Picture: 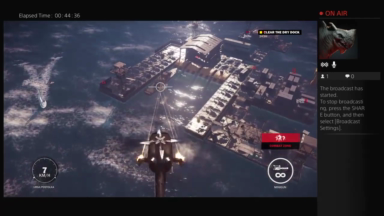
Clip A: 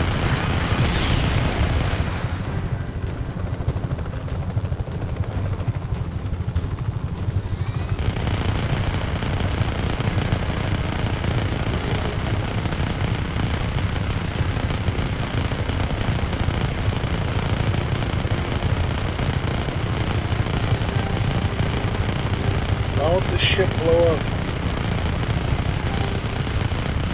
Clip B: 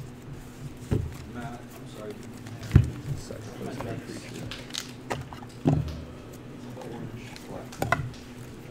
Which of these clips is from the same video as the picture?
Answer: A